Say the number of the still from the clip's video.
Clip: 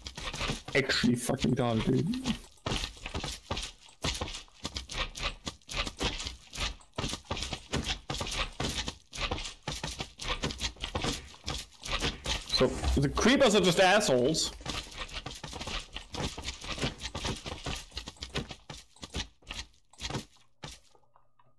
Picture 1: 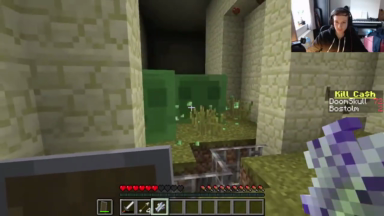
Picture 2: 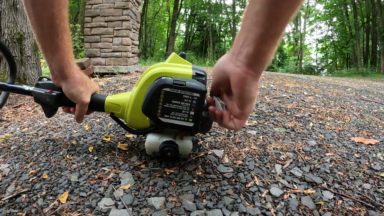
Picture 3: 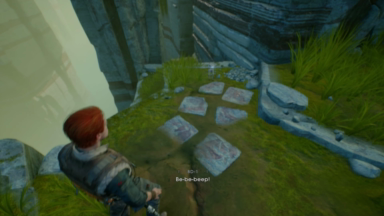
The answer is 1